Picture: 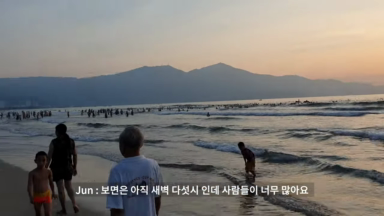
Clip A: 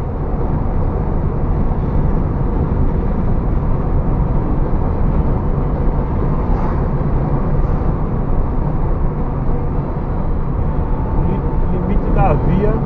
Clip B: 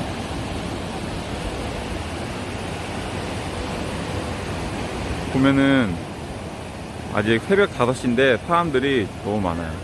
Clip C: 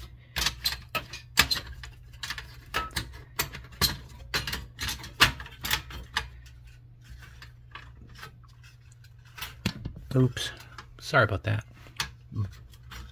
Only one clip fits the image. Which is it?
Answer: B